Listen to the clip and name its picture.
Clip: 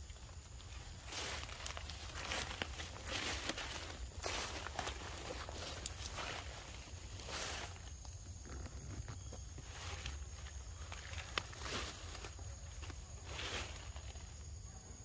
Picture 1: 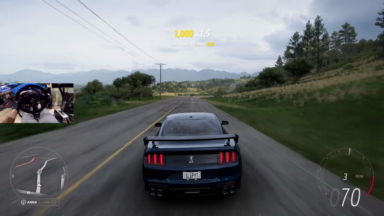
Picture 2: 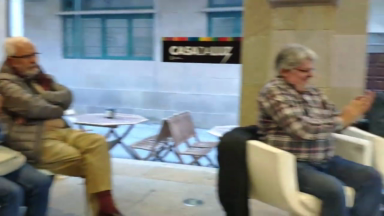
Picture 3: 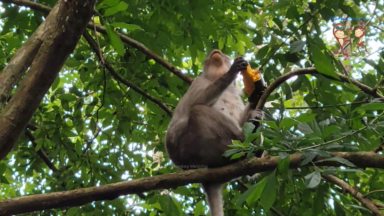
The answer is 3